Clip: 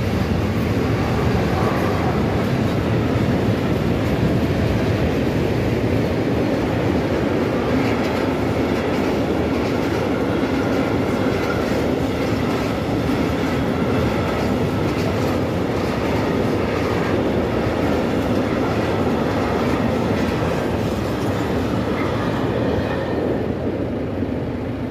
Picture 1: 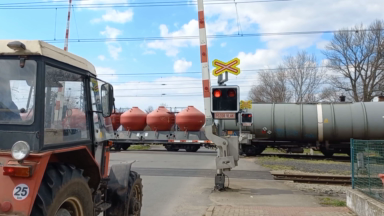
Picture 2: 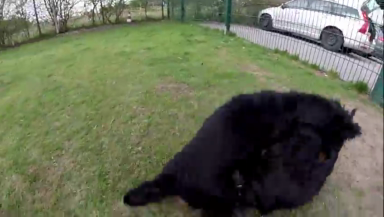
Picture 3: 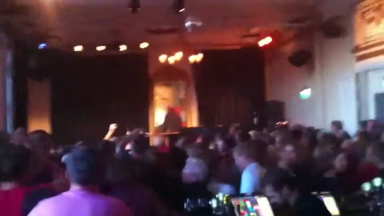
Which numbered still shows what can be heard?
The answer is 1